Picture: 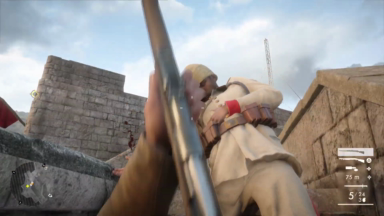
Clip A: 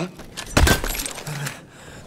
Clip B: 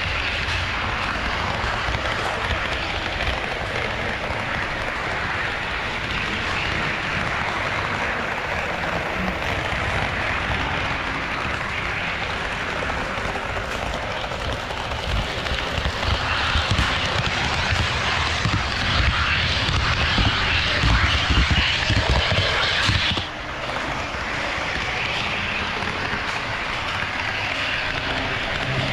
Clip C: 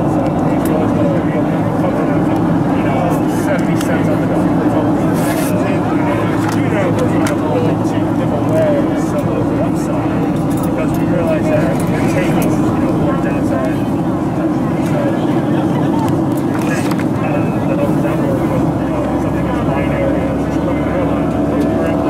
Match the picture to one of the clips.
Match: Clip A